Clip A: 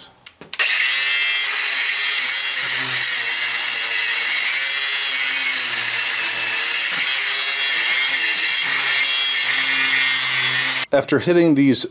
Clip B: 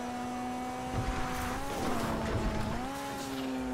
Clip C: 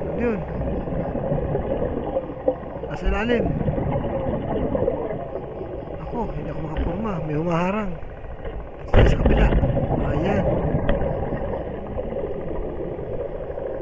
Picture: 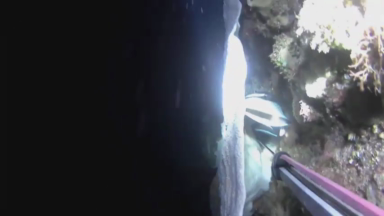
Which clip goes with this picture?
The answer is C